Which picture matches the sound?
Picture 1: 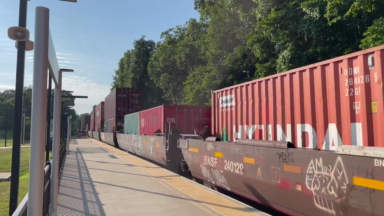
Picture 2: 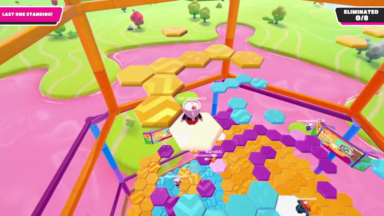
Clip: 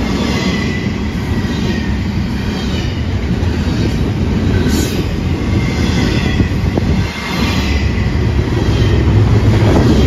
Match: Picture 1